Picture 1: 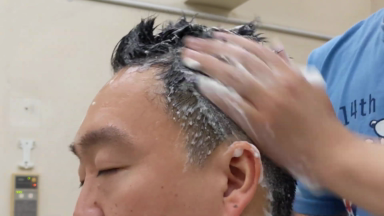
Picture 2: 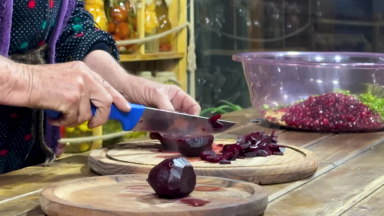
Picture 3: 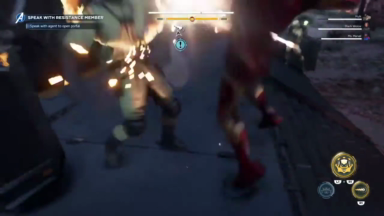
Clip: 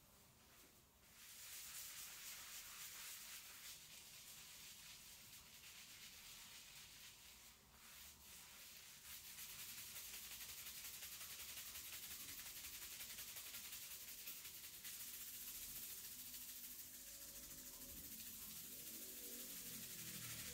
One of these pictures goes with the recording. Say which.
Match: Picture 1